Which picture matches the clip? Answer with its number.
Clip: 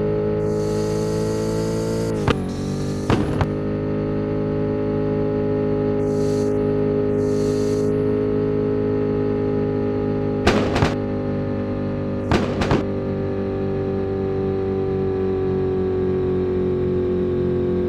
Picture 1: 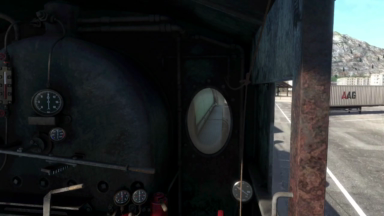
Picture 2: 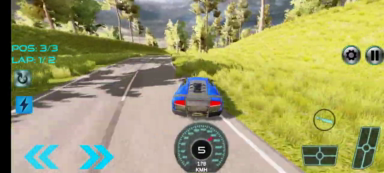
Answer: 2